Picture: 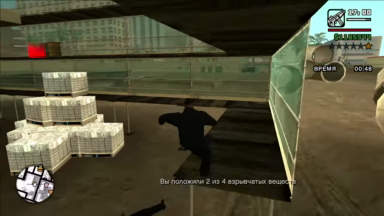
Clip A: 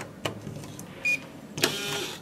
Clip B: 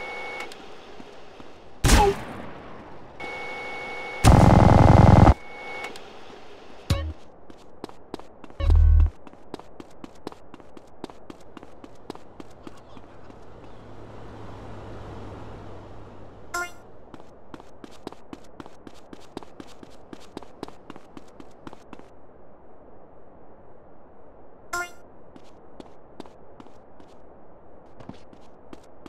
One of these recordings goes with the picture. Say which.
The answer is B